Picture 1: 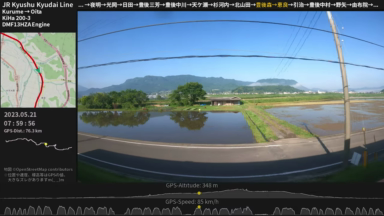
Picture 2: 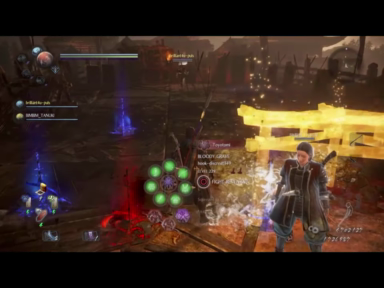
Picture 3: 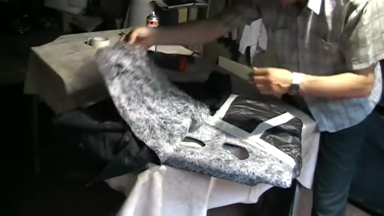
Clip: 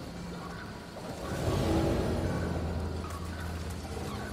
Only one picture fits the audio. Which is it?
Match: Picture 2